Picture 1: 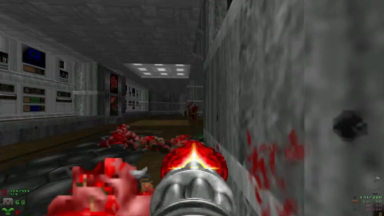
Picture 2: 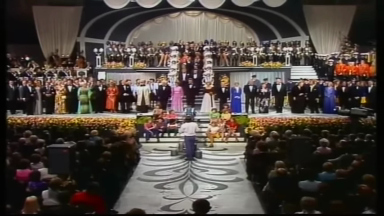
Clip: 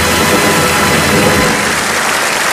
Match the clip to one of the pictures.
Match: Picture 2